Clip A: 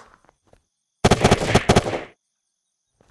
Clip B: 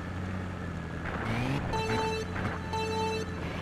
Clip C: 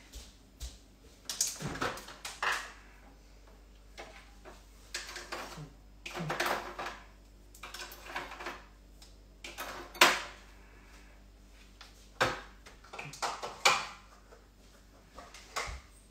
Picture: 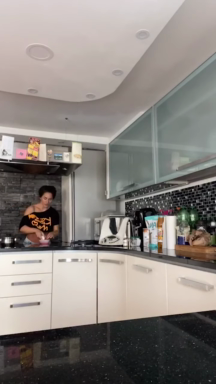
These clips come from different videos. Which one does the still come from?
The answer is C